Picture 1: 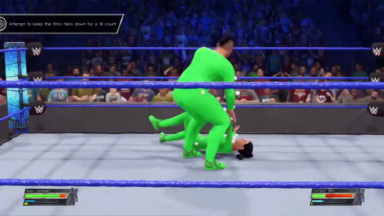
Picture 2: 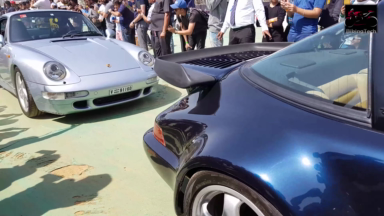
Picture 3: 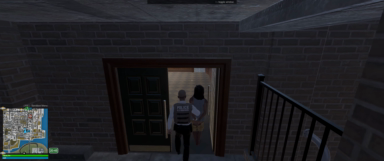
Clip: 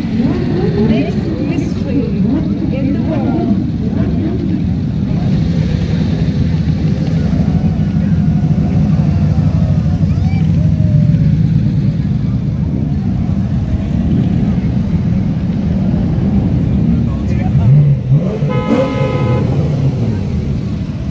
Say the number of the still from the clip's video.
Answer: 2